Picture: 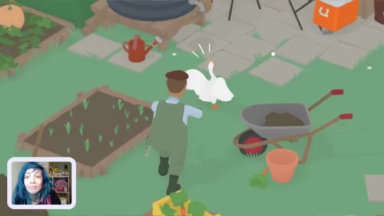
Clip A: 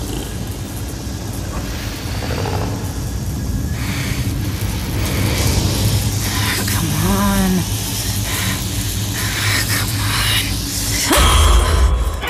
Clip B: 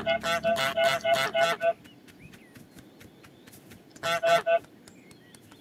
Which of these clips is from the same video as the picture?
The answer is B